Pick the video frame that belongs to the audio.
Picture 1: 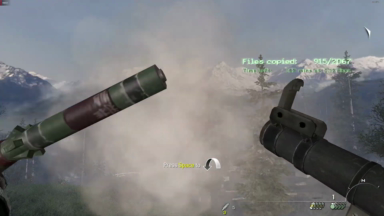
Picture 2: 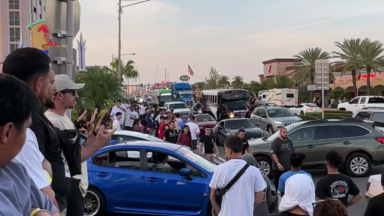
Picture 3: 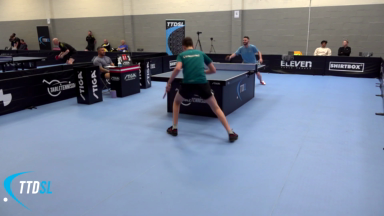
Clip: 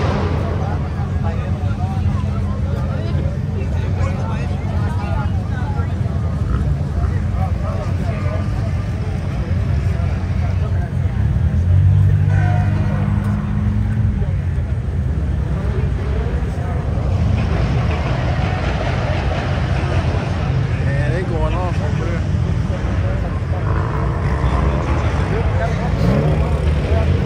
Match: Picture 2